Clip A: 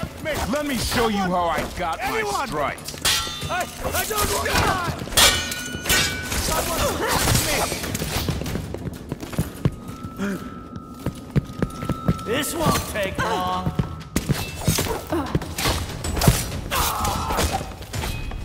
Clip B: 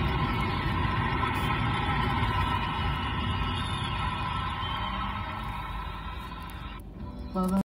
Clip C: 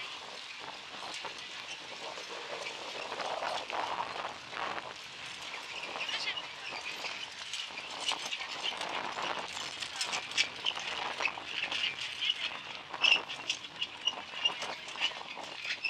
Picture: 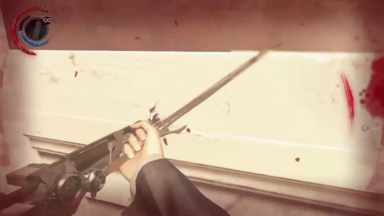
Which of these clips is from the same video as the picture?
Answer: A